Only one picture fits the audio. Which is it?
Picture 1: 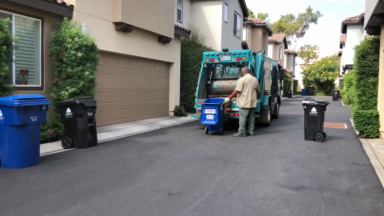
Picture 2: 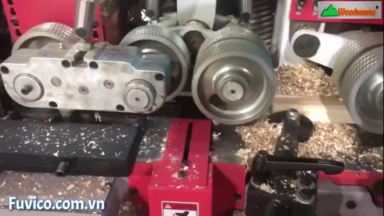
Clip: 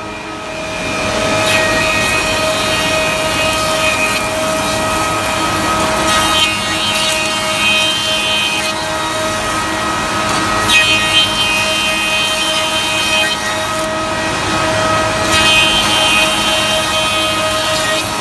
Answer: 2